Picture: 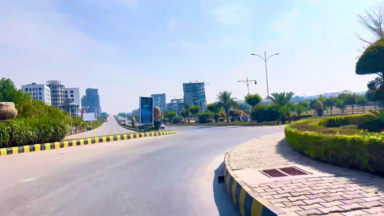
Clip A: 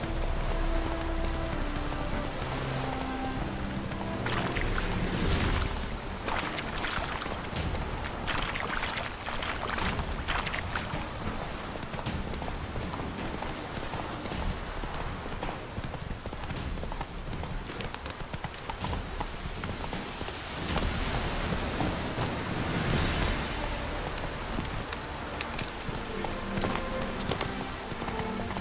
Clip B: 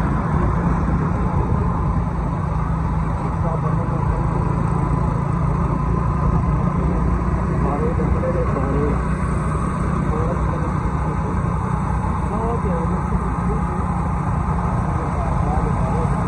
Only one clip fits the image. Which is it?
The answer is B